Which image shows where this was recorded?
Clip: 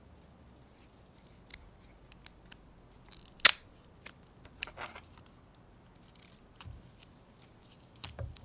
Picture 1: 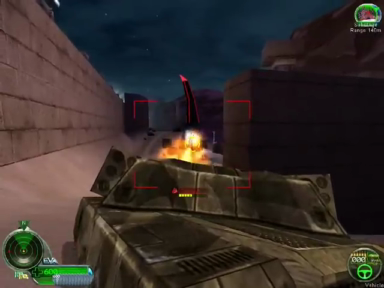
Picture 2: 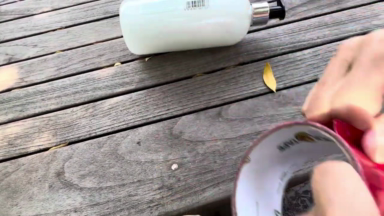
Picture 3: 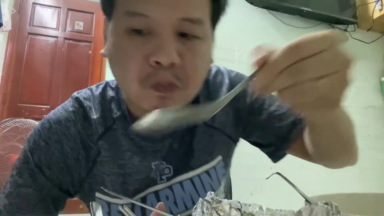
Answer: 2